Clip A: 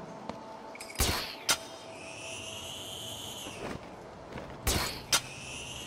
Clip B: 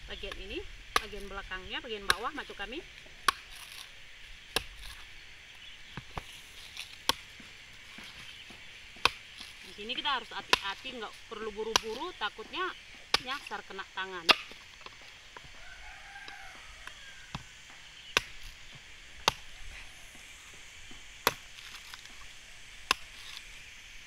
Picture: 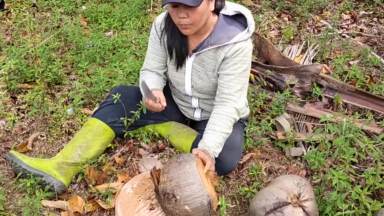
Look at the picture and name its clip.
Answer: B